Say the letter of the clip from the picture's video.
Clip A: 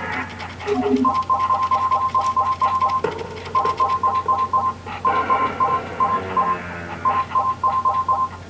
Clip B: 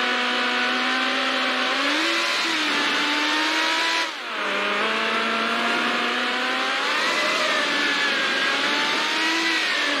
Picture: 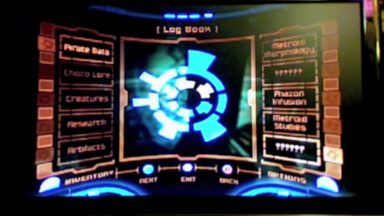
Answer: A